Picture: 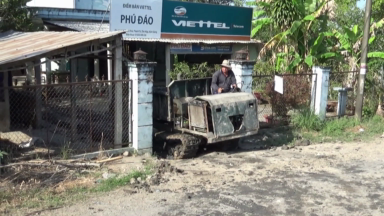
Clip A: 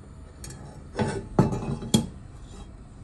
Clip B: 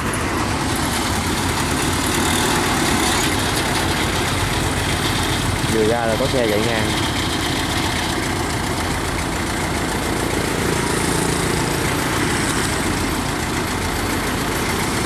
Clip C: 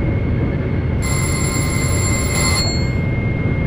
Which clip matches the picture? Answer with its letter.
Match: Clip B